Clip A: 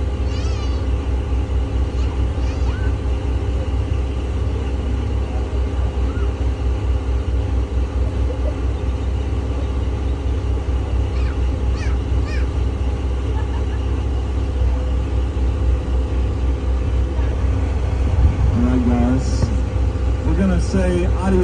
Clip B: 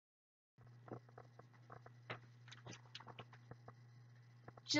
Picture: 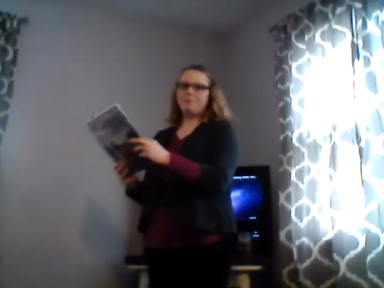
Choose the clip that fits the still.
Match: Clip B